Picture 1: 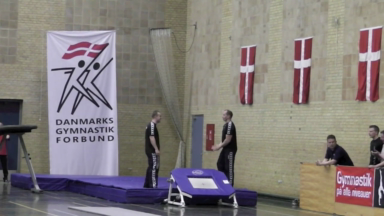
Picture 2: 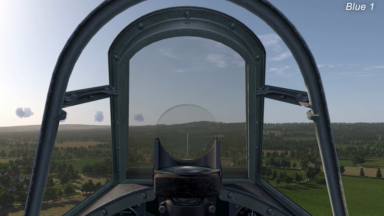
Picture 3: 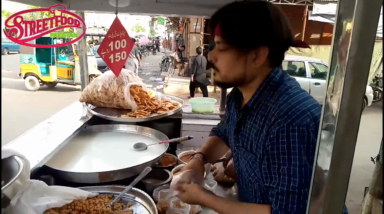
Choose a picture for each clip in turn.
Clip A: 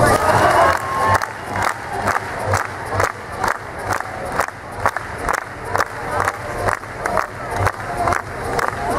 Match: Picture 1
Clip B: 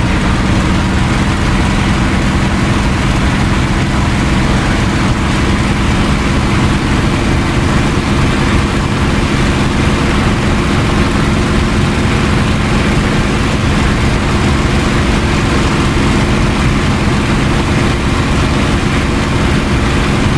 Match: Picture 2